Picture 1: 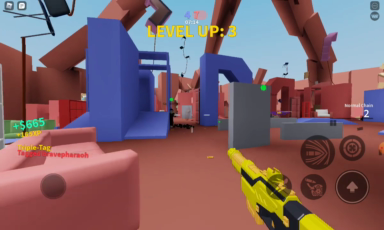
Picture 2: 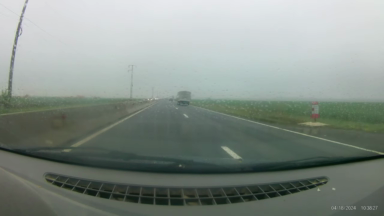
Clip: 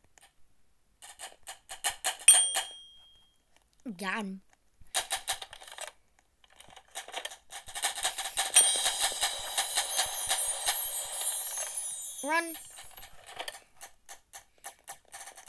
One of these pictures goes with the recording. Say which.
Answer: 1